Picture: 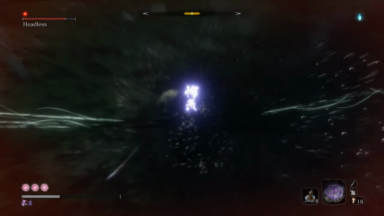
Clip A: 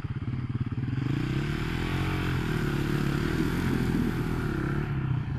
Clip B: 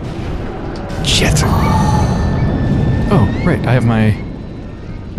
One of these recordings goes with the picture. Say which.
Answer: B